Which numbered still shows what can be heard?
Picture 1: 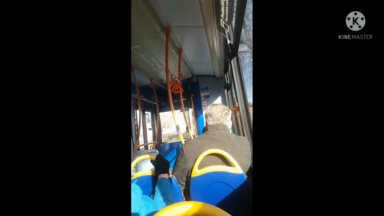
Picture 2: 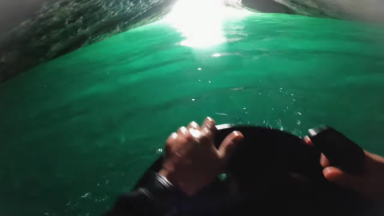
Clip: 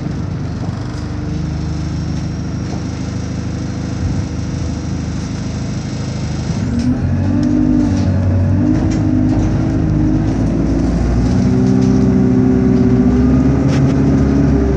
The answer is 1